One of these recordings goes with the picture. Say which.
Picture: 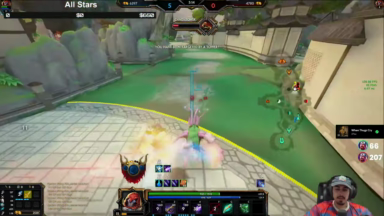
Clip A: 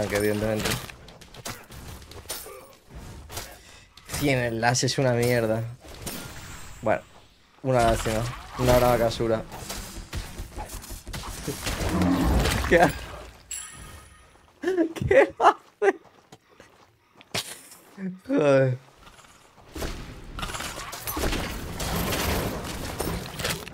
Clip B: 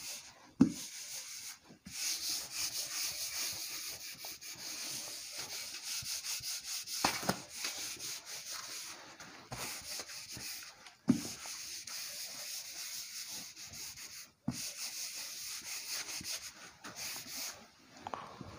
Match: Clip A